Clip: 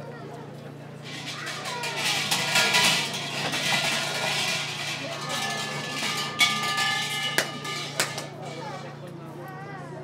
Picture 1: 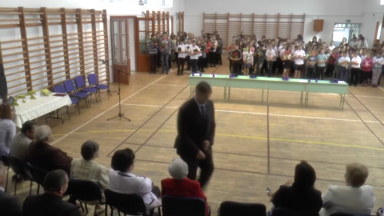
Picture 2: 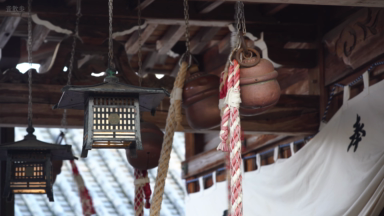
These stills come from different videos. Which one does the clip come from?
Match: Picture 2